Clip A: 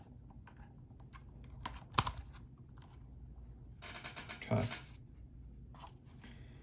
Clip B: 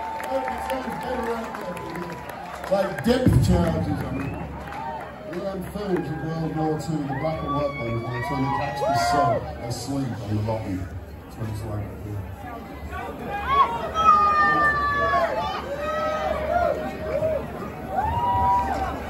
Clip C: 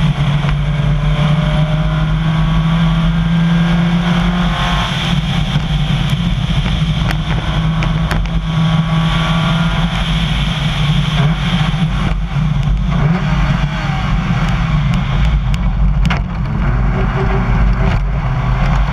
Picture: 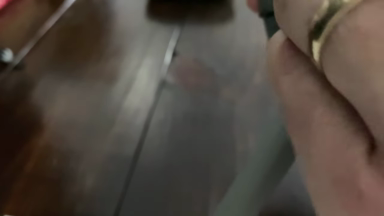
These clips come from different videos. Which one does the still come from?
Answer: A